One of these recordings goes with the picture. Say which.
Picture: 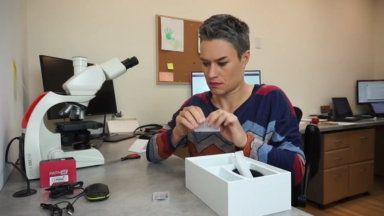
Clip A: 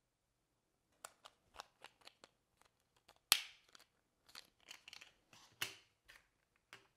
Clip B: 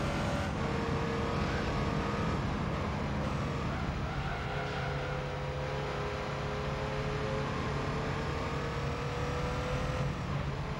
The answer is A